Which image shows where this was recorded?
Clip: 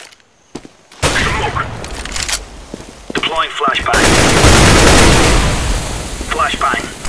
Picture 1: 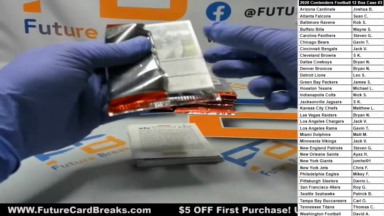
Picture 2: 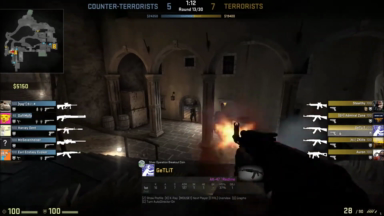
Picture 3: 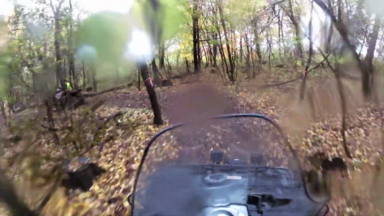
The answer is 2